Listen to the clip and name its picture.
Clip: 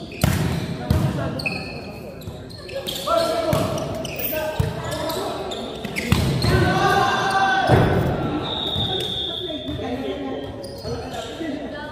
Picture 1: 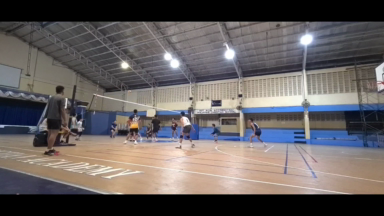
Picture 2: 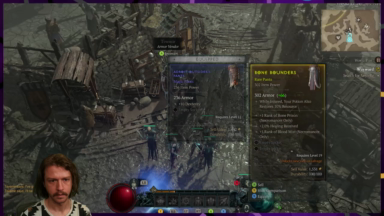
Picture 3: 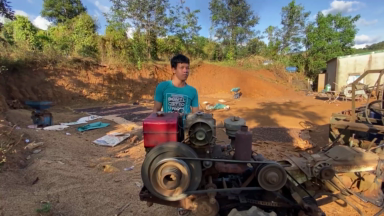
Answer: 1